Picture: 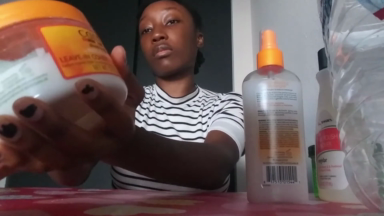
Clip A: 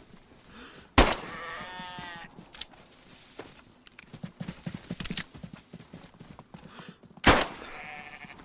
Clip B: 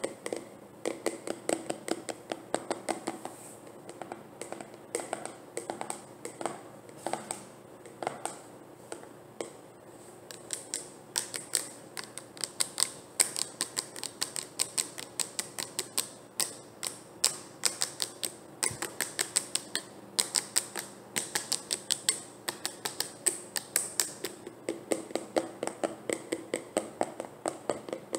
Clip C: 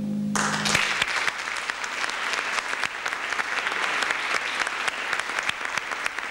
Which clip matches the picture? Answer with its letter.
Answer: B